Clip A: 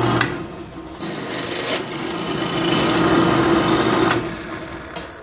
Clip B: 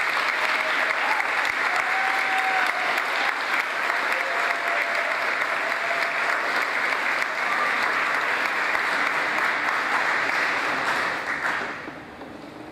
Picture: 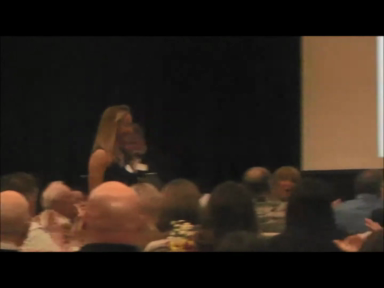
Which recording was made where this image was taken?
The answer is B